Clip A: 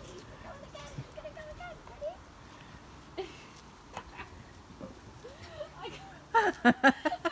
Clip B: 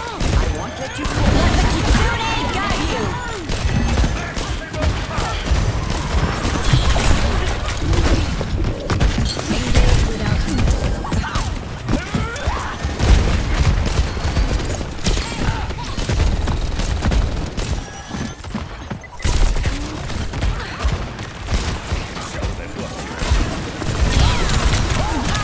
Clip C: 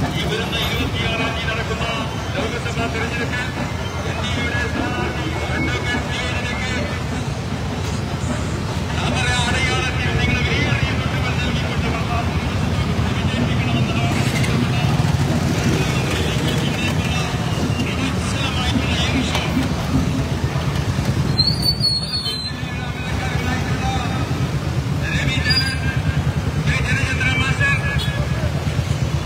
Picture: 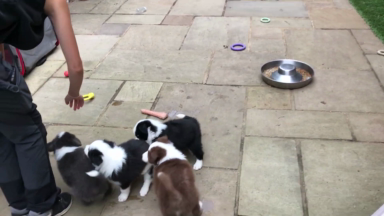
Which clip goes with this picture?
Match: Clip A